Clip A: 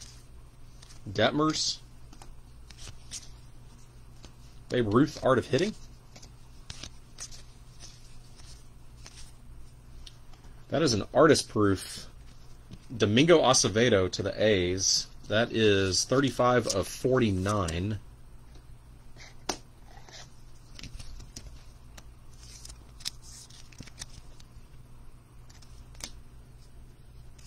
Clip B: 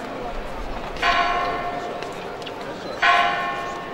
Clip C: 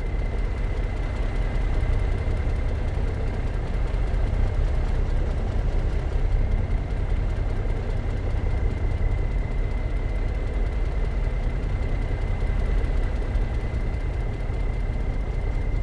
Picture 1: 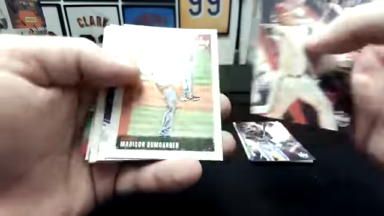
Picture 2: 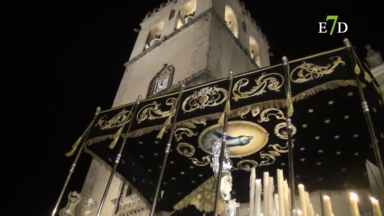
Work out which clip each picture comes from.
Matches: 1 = A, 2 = B